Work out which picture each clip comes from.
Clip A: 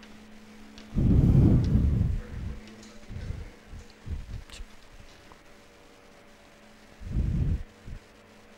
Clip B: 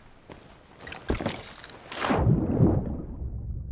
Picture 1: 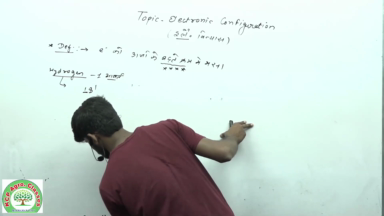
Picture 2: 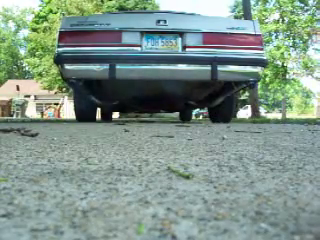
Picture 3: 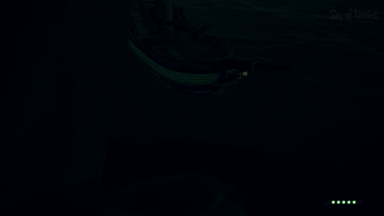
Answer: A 1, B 3